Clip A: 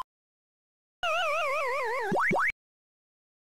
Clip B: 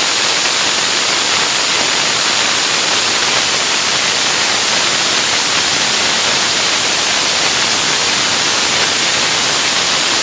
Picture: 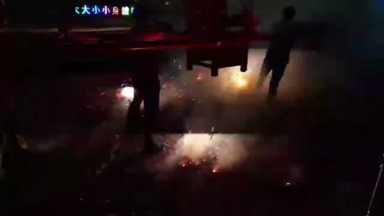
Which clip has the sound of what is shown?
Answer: B